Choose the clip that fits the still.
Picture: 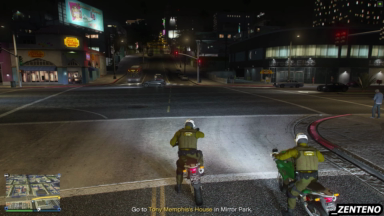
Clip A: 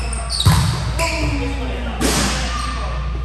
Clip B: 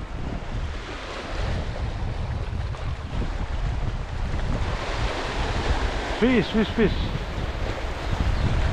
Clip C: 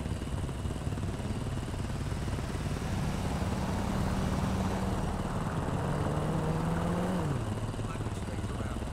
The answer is C